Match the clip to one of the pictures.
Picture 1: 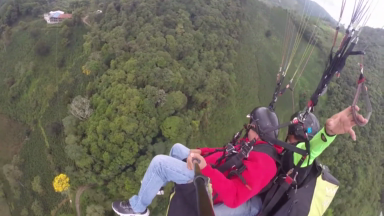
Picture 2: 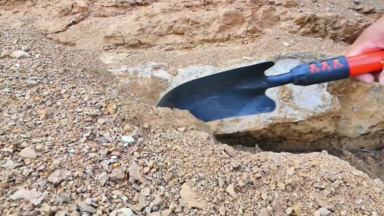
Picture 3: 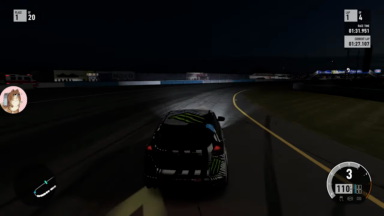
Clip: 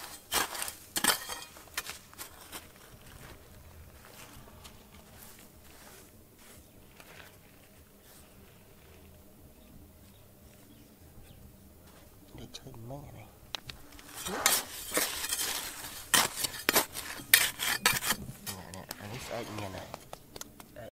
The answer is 2